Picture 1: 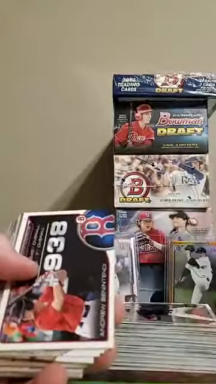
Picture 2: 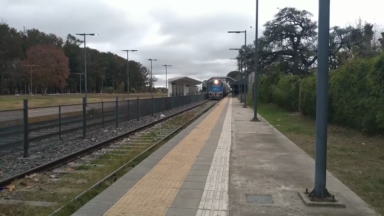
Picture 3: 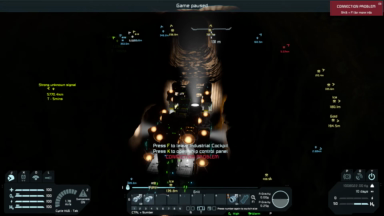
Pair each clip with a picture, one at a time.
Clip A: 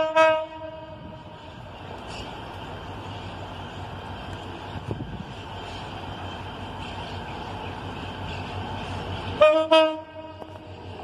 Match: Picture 2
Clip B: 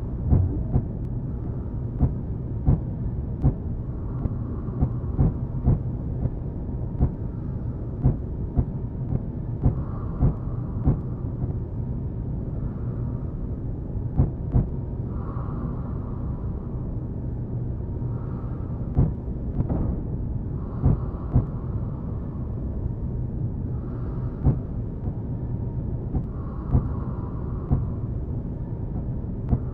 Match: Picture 3